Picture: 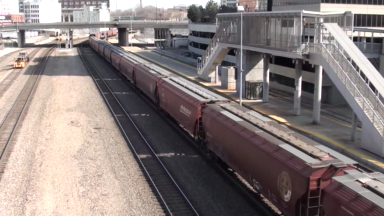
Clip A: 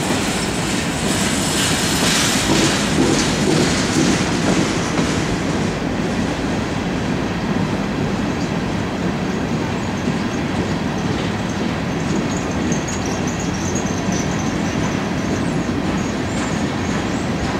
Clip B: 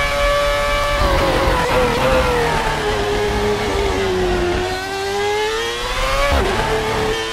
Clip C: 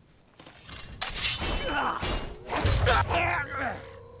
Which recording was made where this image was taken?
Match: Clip A